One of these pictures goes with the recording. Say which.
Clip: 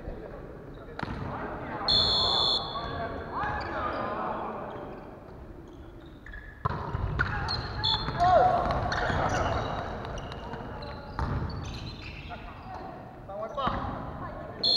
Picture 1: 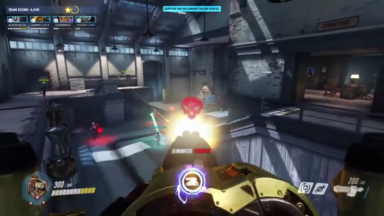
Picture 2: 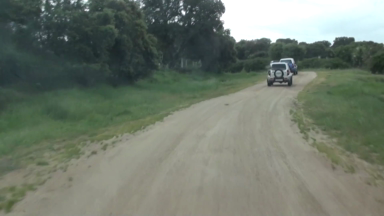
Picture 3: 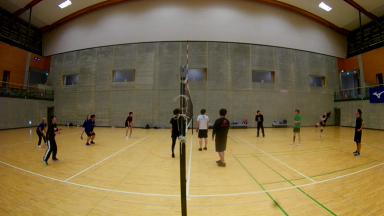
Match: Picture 3